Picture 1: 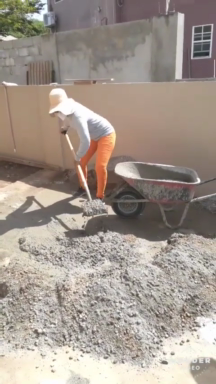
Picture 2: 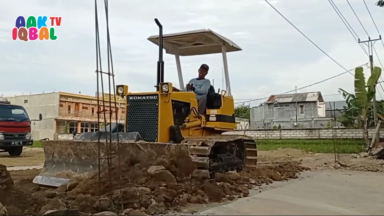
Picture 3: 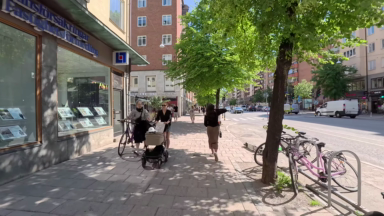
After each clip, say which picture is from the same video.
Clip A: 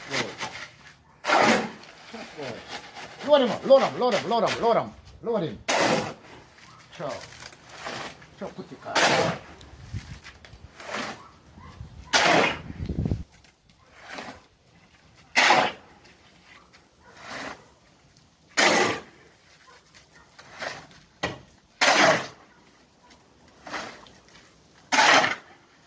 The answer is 1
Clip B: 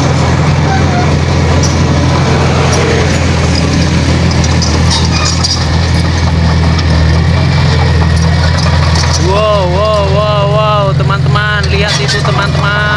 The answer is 2